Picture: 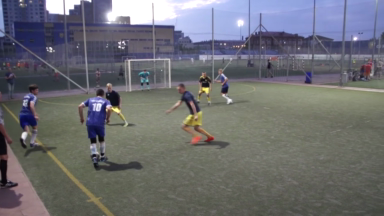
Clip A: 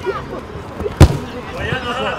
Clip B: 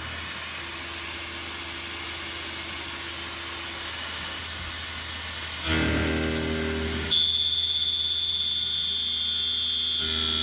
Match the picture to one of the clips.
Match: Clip A